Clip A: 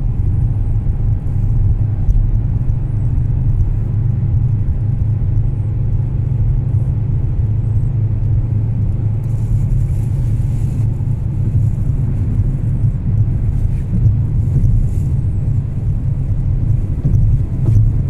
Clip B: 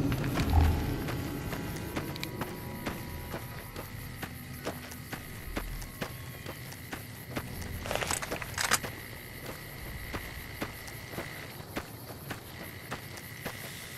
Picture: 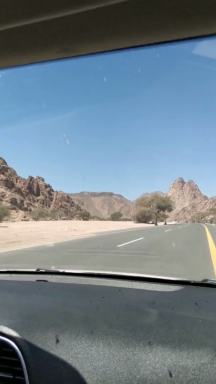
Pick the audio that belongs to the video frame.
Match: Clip A